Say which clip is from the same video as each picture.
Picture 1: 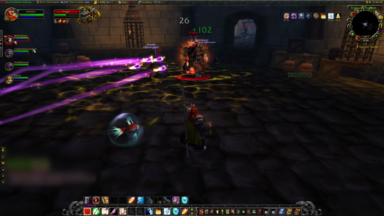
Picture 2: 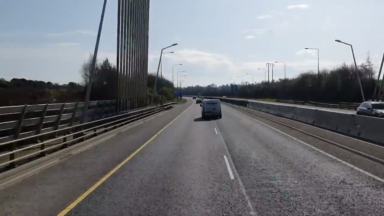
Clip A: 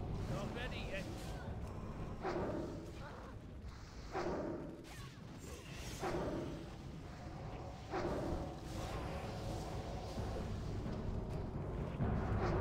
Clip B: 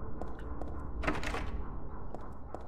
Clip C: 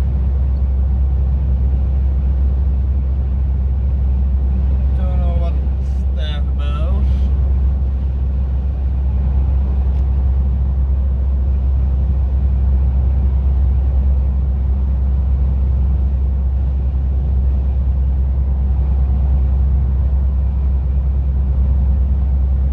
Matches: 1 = A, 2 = C